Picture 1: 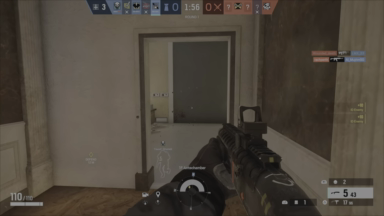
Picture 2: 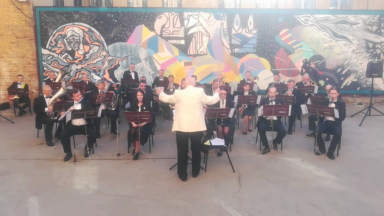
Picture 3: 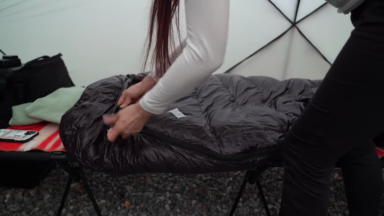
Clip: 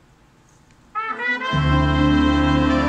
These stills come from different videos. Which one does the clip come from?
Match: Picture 2